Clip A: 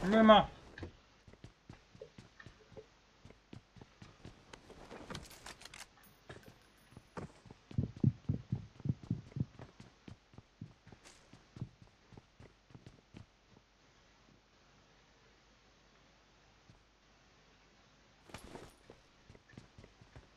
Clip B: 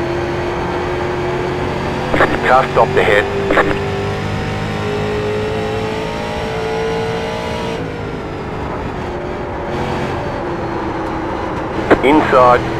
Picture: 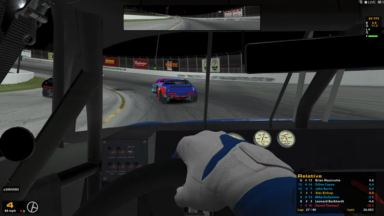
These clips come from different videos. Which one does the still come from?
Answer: B